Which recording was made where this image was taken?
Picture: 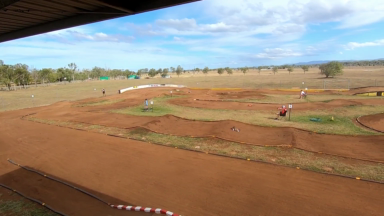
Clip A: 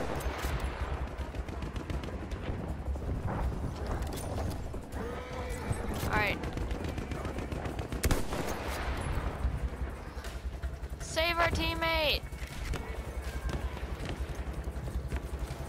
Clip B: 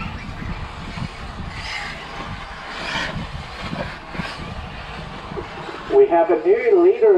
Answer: B